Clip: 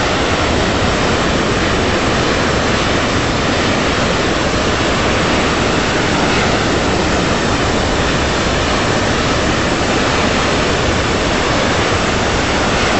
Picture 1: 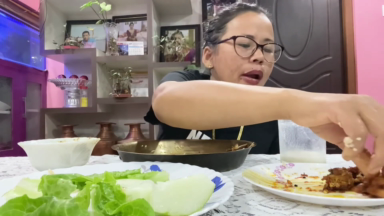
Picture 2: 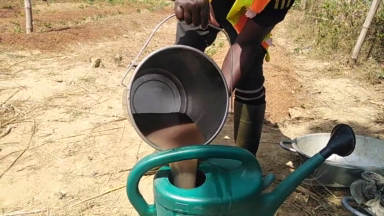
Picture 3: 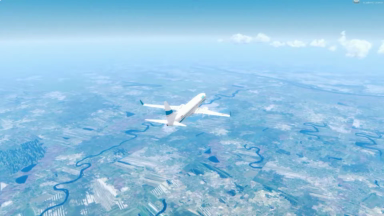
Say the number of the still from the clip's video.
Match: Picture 3